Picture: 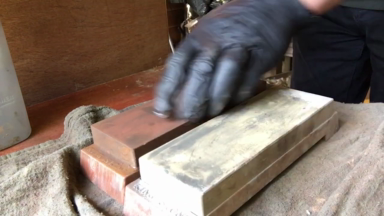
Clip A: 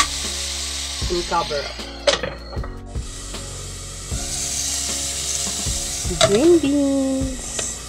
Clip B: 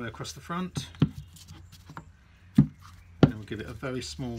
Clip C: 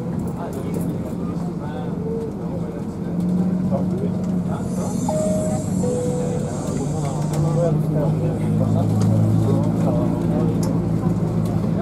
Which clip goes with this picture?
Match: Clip B